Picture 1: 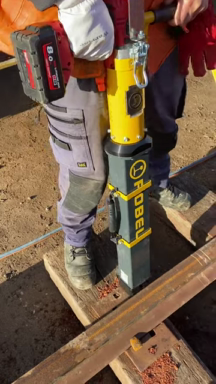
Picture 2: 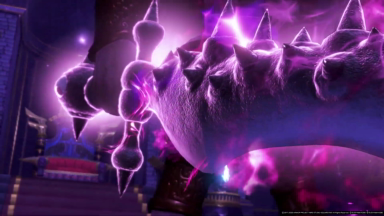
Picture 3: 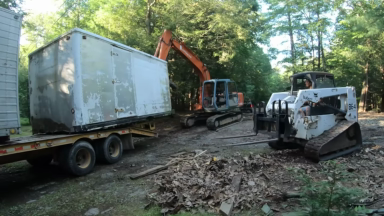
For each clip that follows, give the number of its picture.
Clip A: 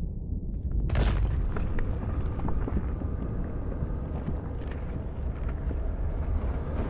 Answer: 2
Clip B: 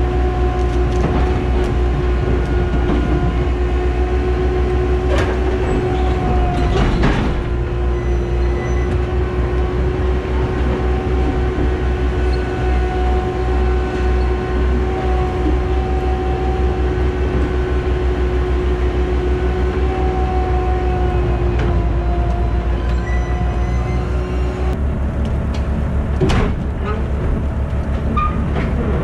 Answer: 3